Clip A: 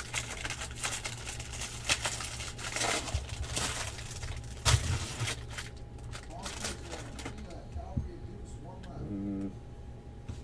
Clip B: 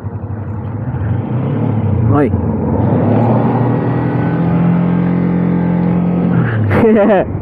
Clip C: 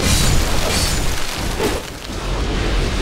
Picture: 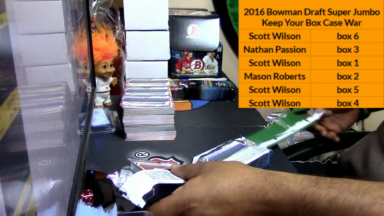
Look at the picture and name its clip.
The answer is A